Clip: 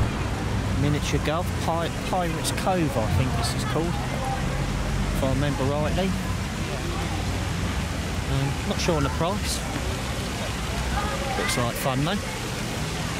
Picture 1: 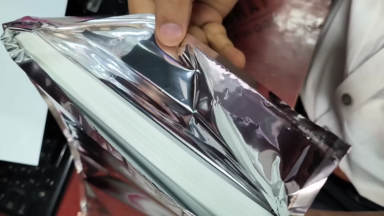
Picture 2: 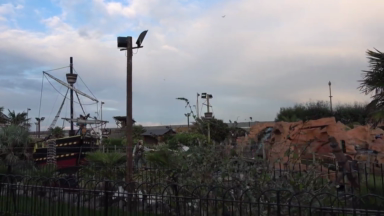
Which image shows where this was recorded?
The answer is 2